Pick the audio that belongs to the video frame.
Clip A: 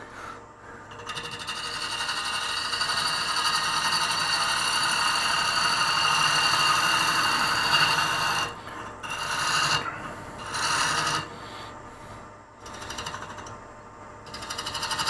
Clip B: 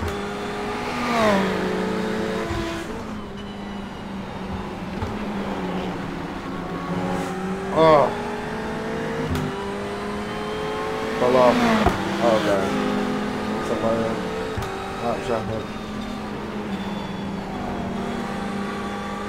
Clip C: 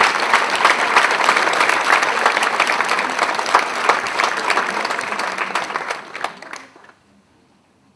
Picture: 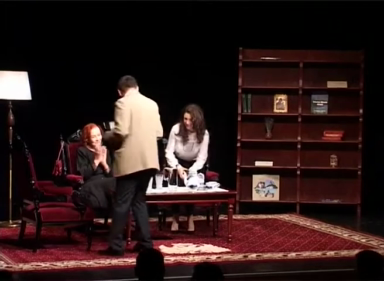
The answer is C